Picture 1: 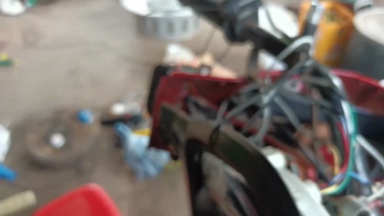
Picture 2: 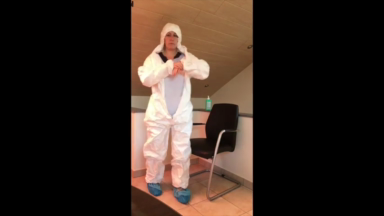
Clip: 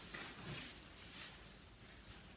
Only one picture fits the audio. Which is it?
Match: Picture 2